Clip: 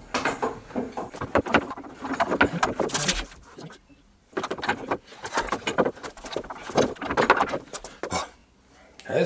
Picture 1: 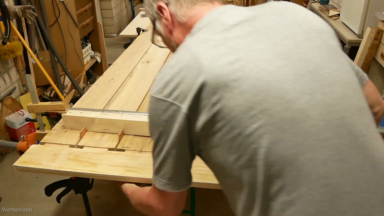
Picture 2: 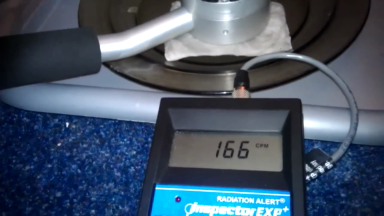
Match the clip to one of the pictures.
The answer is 1